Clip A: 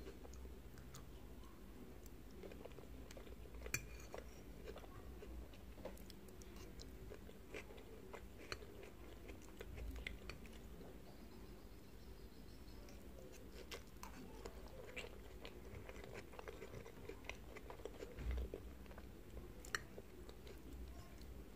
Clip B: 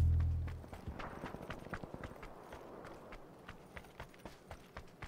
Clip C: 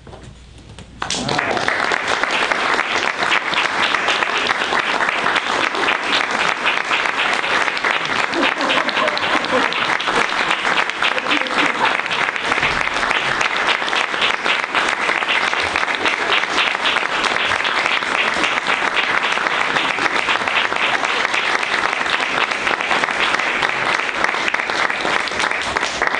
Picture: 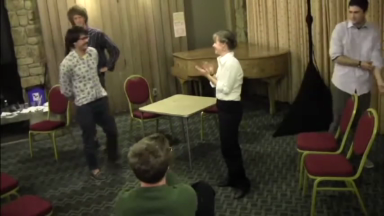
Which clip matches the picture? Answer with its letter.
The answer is C